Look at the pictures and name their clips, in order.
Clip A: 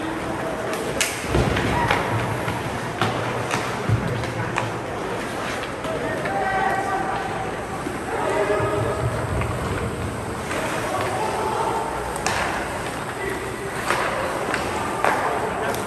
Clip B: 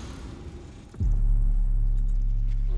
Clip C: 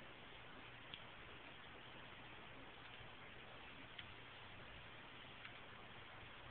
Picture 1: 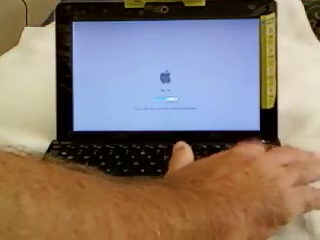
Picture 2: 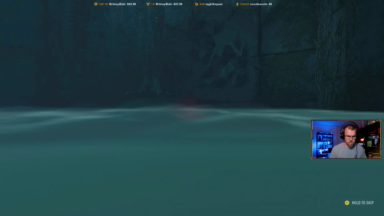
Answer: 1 C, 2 B